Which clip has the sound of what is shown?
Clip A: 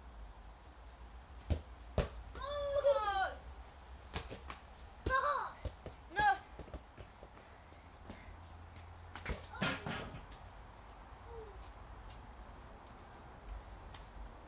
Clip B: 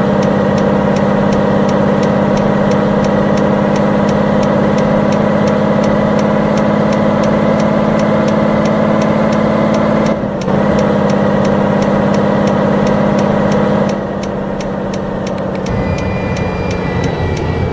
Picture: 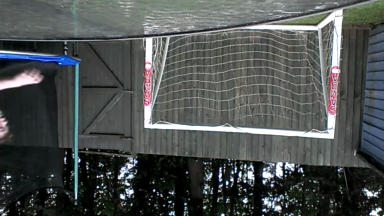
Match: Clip A